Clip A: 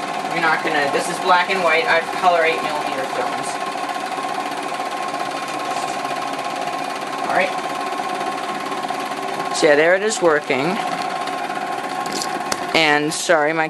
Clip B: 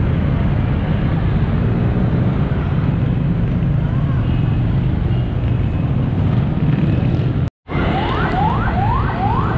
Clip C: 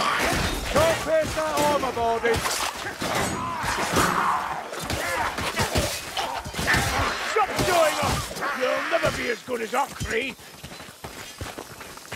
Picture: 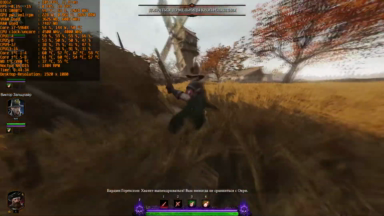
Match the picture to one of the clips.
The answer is C